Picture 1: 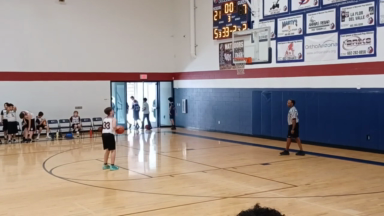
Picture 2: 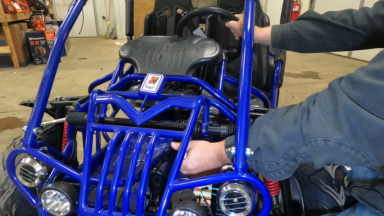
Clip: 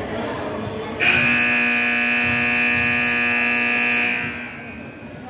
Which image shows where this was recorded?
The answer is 1